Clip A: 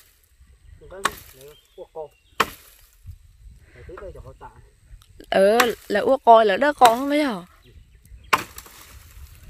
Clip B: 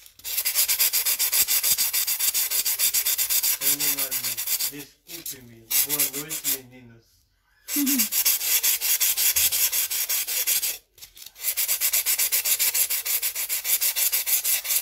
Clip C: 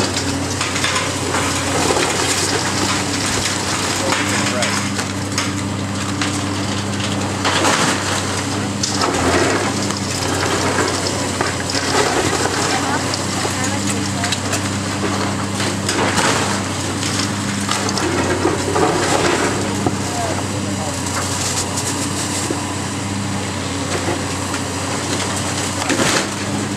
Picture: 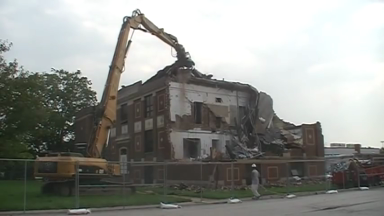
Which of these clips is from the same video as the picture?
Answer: C